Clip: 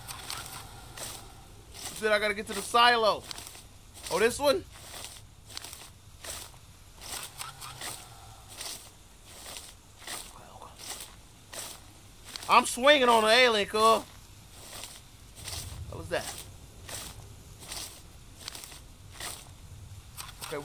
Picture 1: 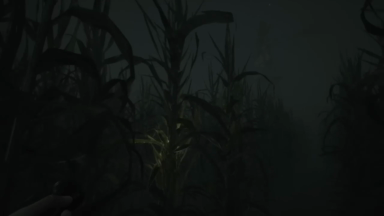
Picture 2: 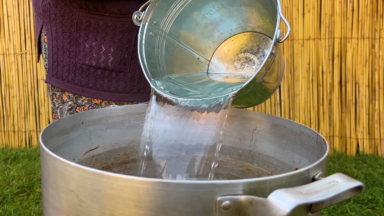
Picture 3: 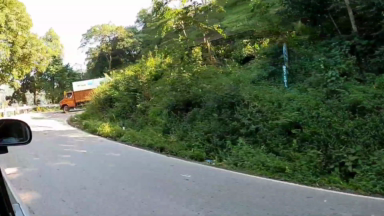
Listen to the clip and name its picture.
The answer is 1